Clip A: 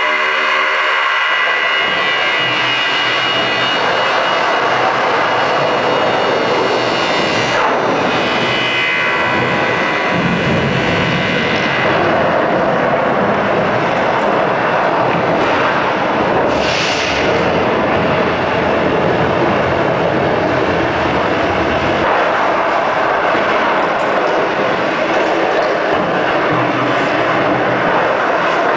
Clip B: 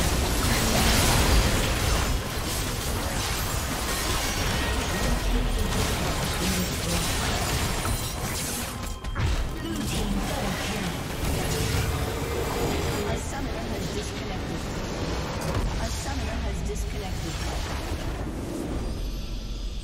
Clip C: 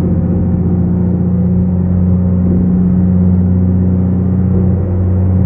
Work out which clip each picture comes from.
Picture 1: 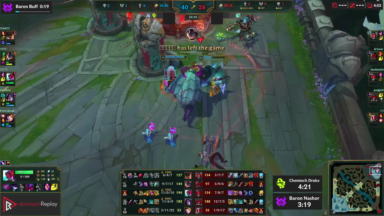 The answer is B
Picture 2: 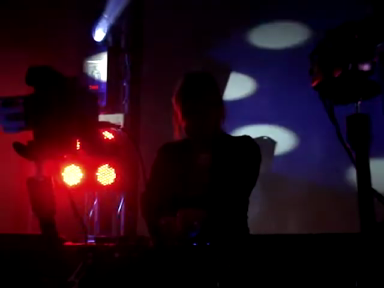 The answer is A